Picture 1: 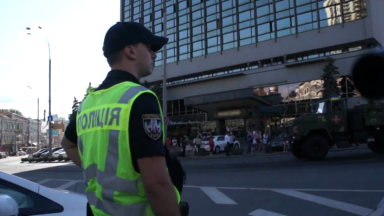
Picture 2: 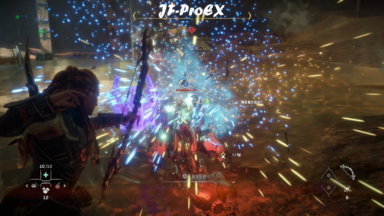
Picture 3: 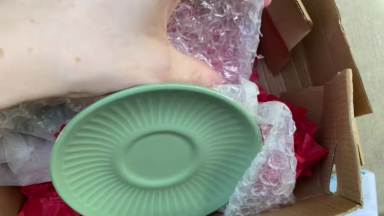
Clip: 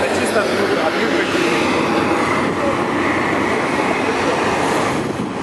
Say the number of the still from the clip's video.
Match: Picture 1